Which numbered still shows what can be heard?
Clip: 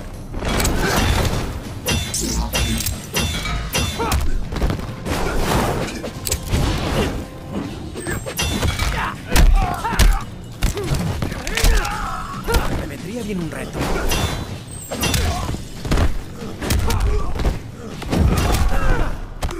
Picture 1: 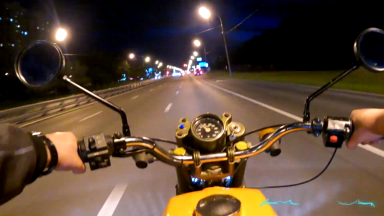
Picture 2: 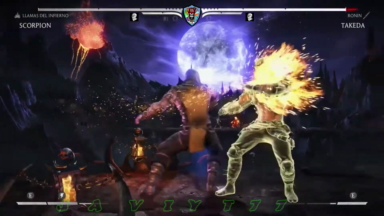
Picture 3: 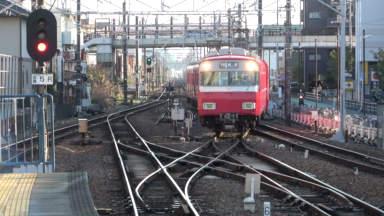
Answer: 2